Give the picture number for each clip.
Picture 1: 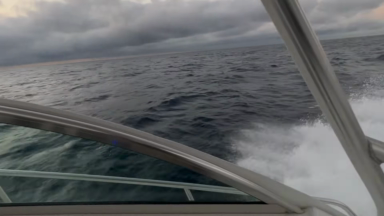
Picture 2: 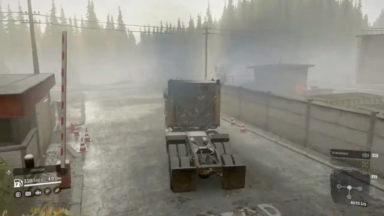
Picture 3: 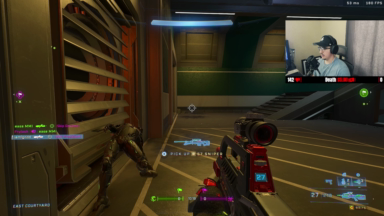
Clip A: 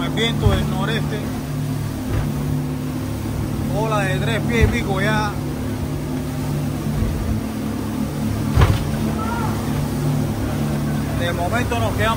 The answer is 1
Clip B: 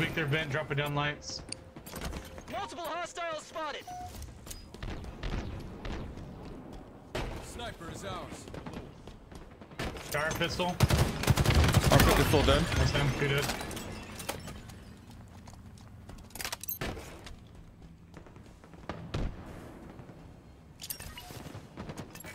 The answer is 3